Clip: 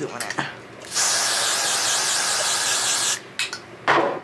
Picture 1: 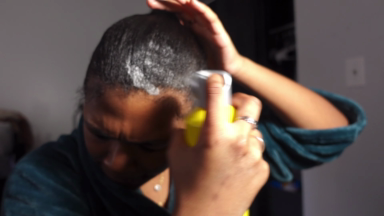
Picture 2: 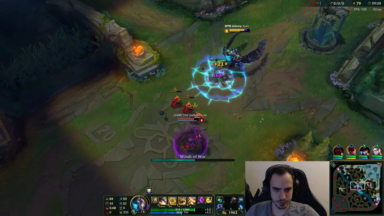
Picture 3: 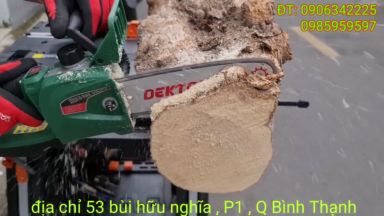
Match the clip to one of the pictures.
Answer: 1